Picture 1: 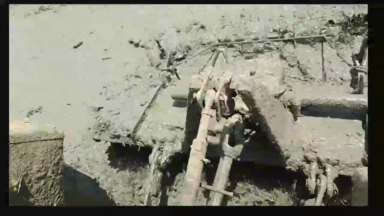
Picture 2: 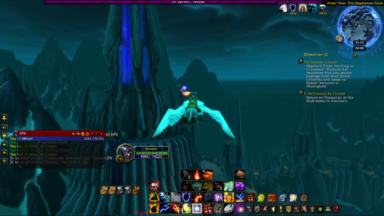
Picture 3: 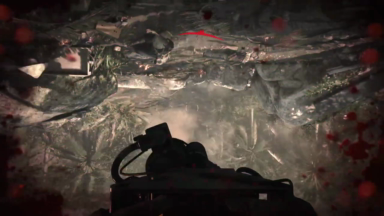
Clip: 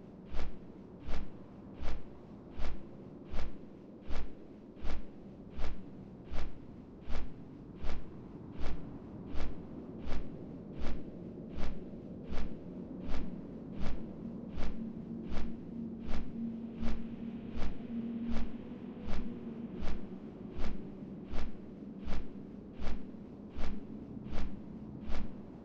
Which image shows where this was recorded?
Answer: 2